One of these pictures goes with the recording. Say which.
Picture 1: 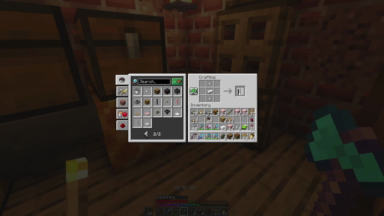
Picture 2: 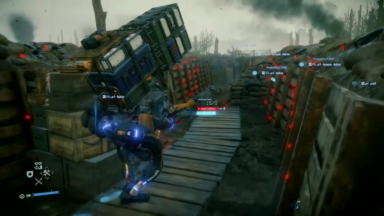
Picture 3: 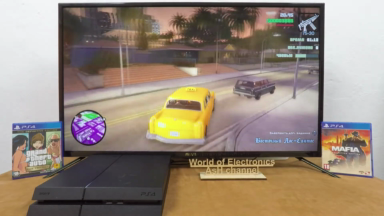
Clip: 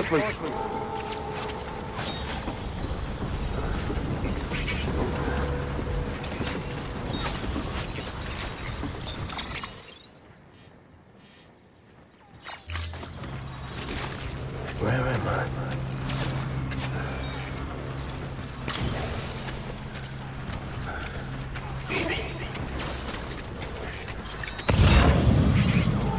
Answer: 2